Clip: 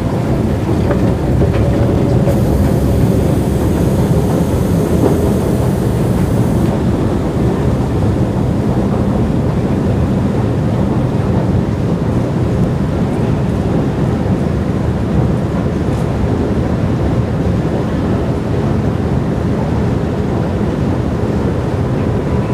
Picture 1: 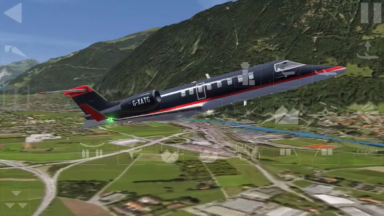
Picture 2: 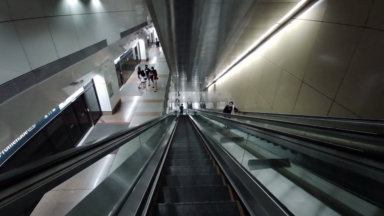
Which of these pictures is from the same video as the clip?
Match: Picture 2